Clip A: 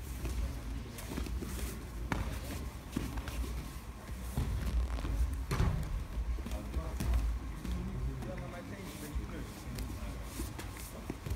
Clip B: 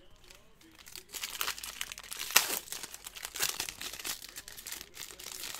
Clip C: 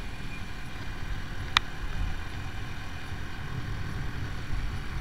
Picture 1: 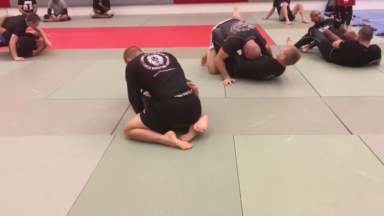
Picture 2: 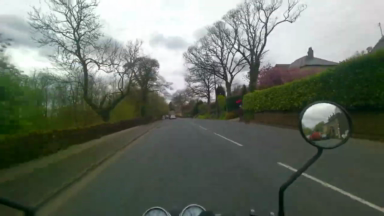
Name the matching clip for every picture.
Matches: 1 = A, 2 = C